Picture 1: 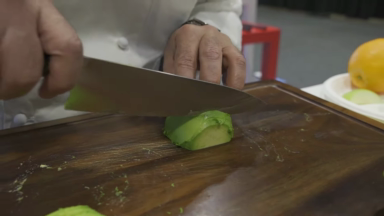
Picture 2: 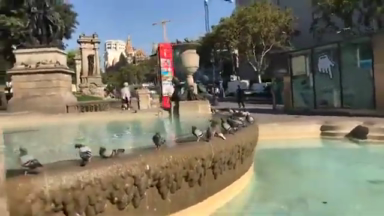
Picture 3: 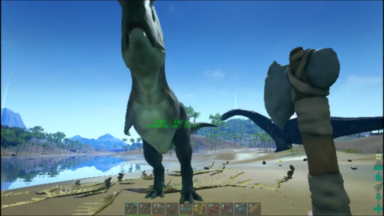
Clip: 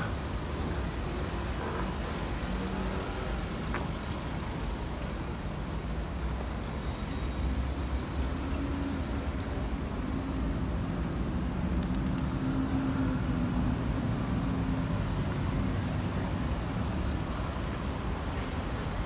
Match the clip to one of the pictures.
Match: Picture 2